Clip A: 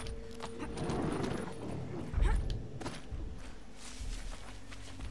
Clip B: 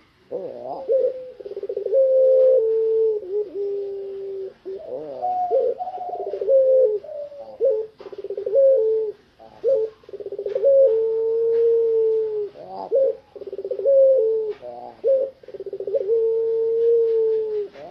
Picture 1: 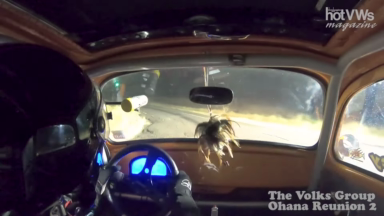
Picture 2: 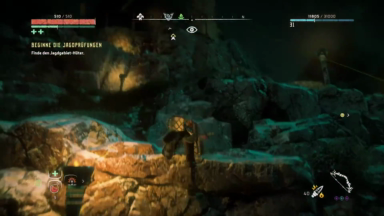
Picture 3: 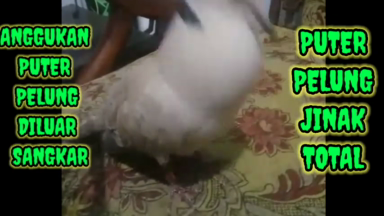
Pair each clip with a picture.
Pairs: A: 2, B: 3